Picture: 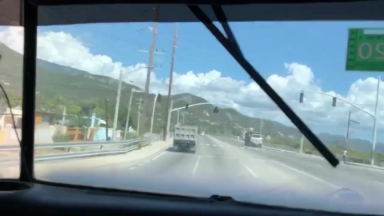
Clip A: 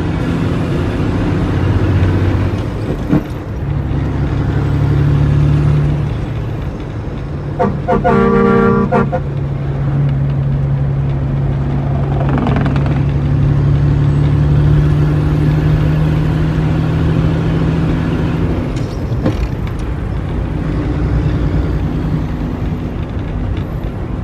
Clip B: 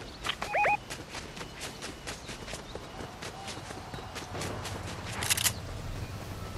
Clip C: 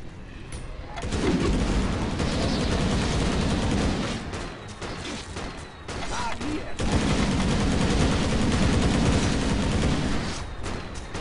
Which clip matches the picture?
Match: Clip A